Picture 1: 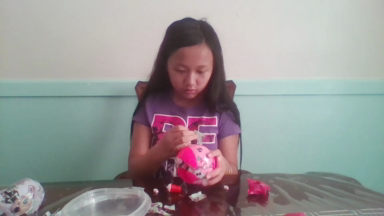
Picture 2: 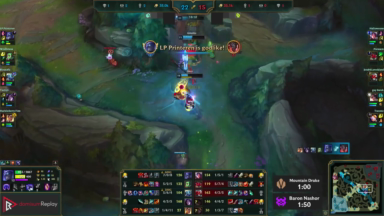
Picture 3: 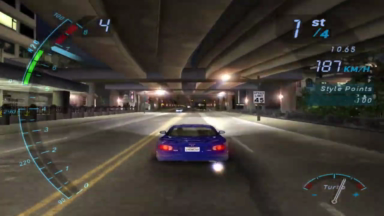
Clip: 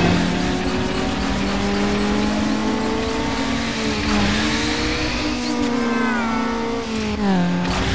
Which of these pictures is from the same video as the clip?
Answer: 3